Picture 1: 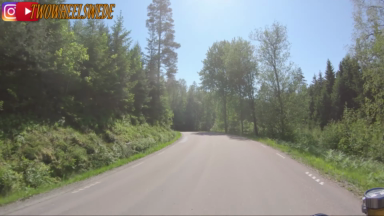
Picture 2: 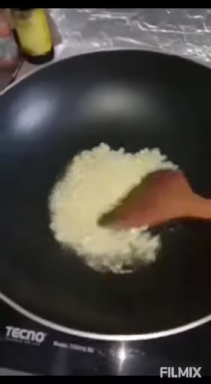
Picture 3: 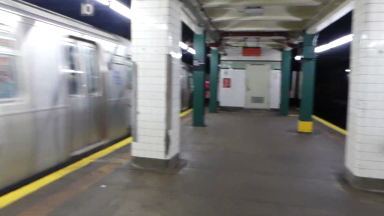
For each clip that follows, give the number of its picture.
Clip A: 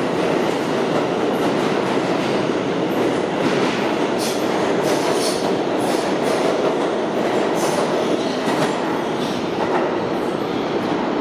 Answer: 3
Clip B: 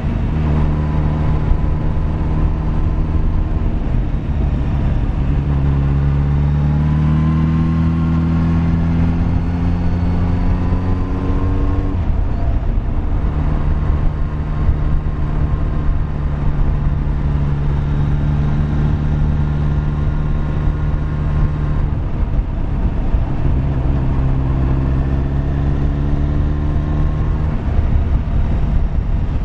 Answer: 1